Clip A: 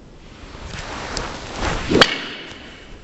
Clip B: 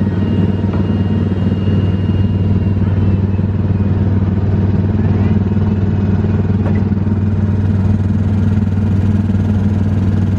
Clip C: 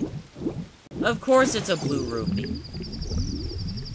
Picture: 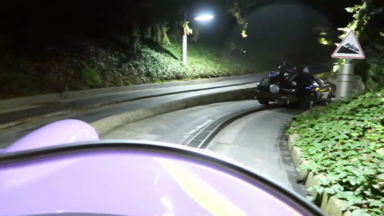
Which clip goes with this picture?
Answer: B